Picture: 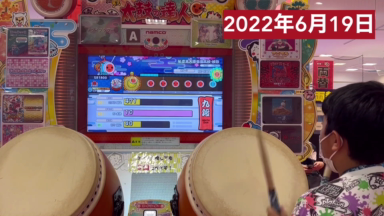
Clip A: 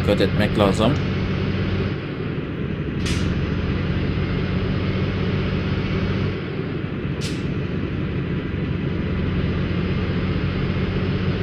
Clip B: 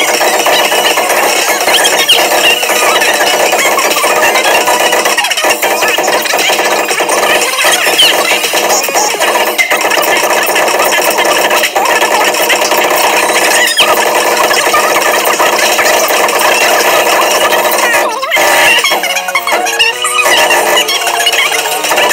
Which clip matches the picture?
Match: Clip B